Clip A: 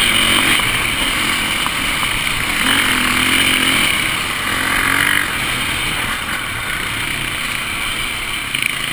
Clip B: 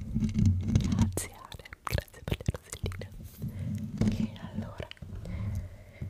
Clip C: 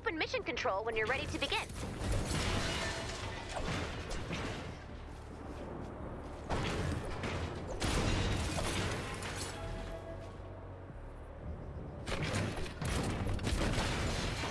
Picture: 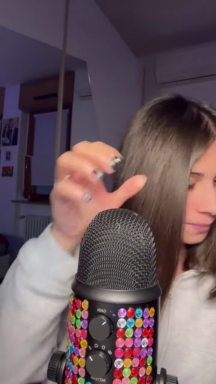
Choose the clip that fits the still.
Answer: B